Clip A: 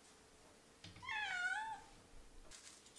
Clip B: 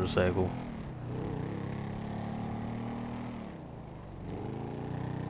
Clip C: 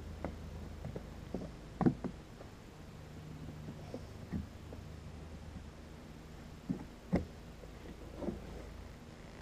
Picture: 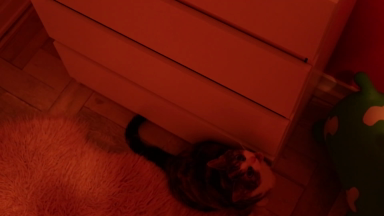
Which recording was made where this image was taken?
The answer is A